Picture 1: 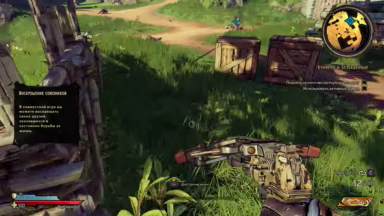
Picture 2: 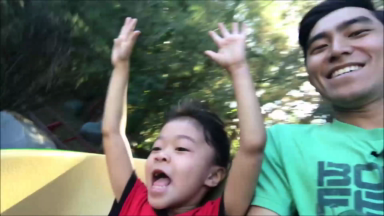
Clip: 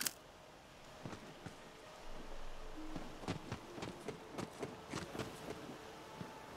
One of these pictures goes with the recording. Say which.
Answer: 1